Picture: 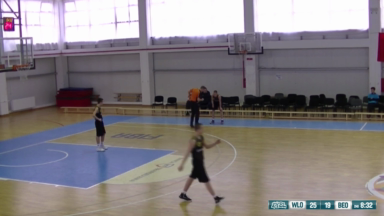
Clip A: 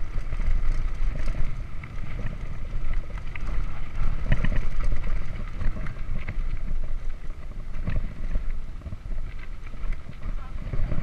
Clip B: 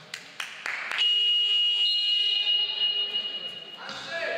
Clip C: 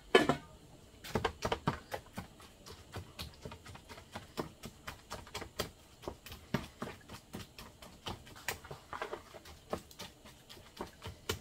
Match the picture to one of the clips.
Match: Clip B